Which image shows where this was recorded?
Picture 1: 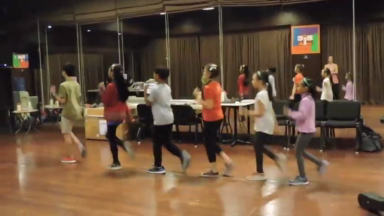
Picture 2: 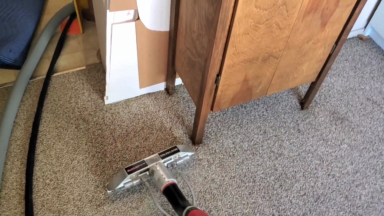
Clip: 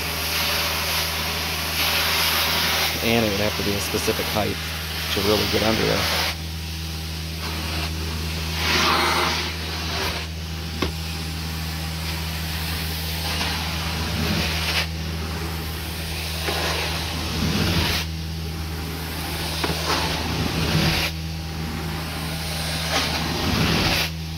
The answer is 2